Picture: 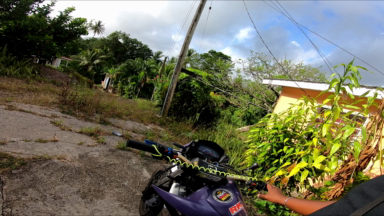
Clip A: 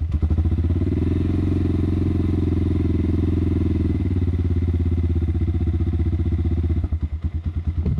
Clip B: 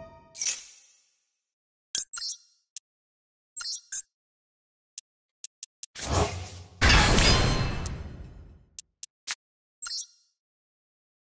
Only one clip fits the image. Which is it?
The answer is A